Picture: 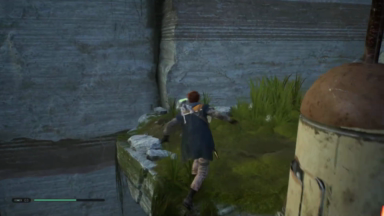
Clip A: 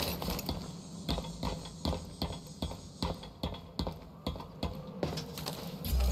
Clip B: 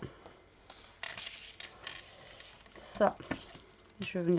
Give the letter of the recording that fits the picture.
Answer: A